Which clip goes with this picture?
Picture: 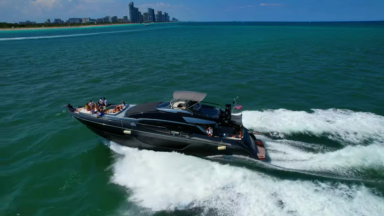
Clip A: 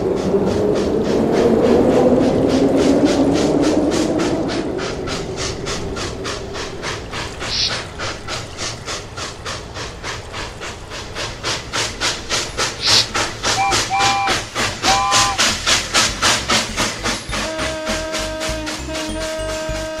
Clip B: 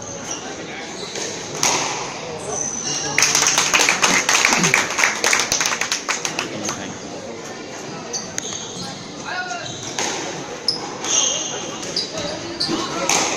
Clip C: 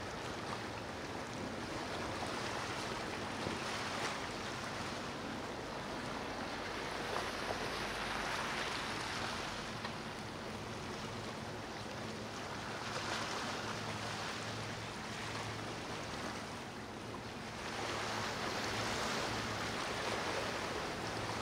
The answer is C